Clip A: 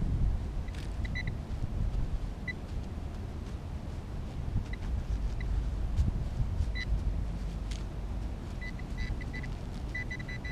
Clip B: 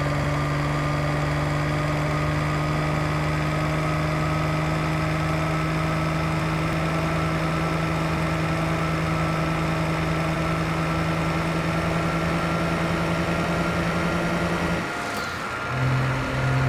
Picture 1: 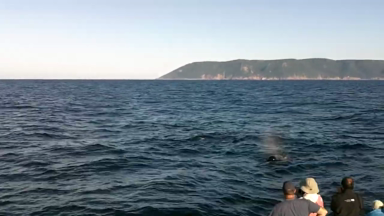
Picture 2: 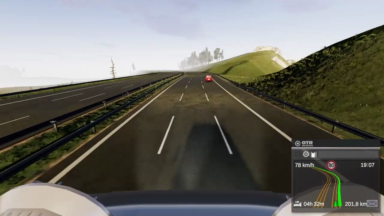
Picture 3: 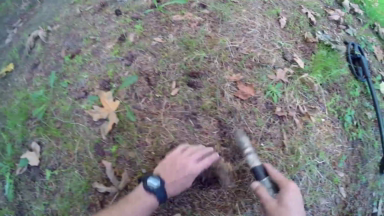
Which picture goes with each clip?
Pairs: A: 3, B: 2